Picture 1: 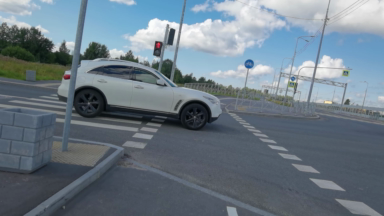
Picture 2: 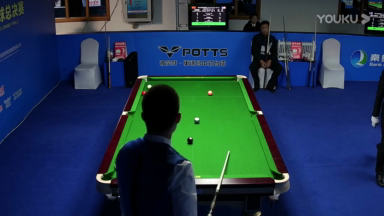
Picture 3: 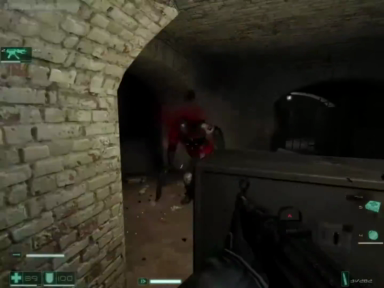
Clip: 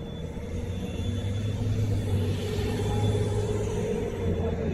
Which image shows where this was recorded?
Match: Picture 1